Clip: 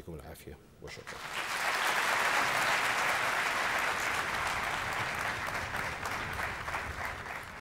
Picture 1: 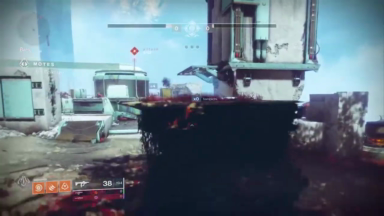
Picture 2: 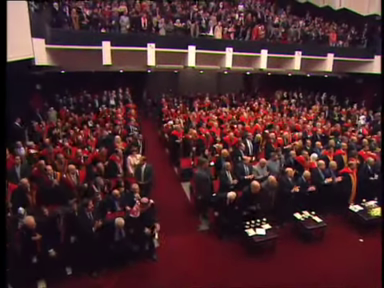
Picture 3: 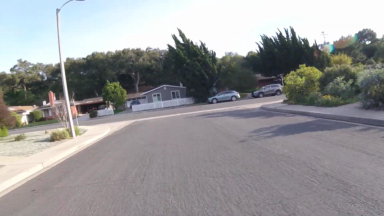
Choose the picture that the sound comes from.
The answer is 2